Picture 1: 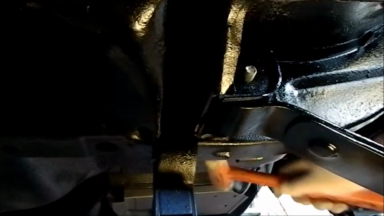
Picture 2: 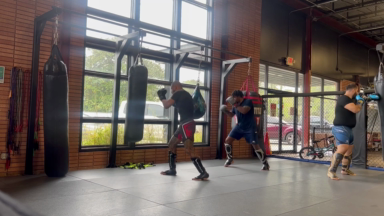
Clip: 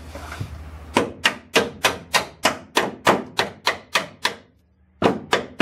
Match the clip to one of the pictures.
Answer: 1